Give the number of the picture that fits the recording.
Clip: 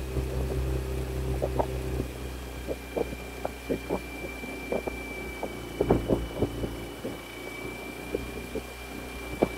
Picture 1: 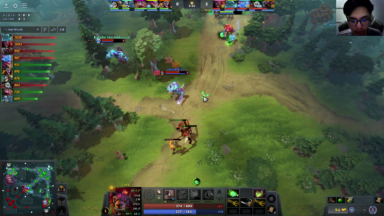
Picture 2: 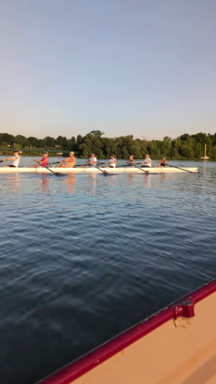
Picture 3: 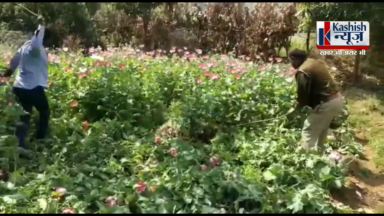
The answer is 2